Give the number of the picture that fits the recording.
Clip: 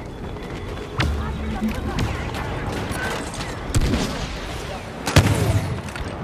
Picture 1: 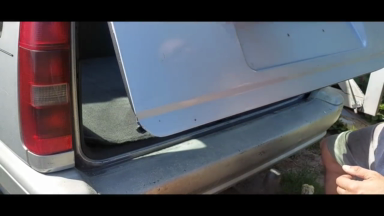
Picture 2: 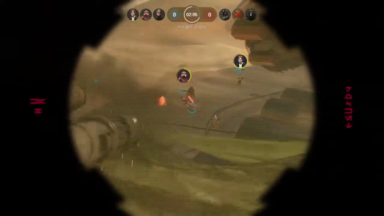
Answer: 2